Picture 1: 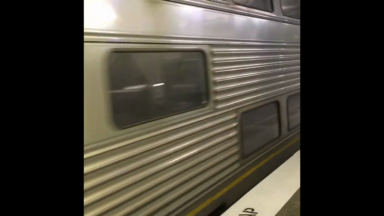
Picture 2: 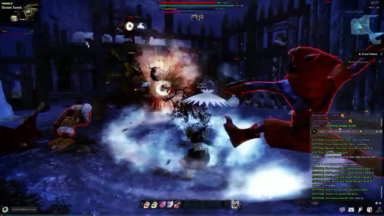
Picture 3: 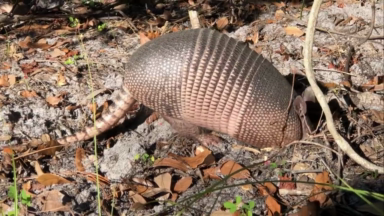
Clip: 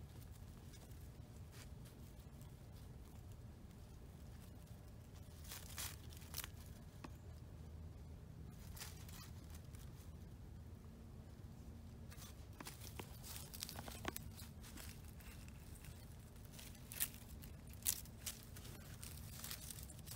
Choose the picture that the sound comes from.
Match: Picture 3